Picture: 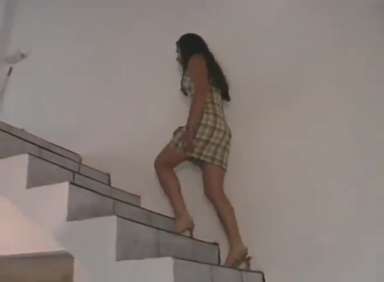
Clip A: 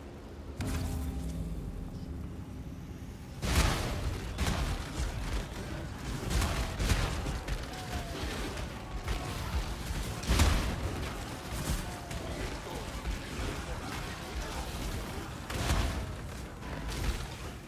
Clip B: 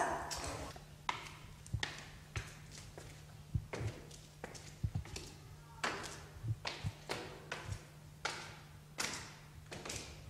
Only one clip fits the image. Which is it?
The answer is B